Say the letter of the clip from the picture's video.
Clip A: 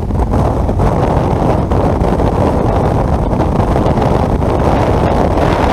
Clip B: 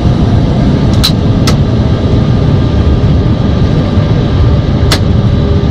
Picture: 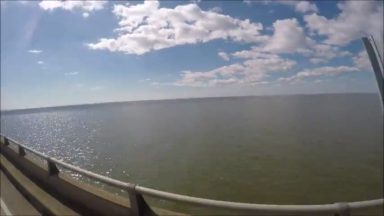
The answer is A